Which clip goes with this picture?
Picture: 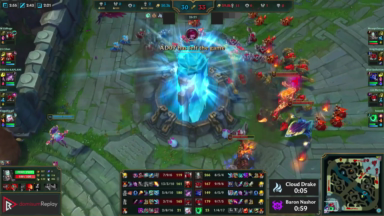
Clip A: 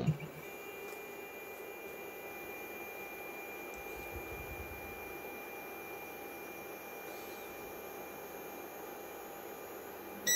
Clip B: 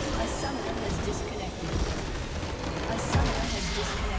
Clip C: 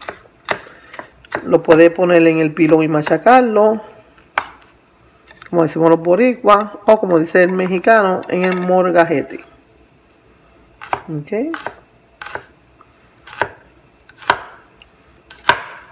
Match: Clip B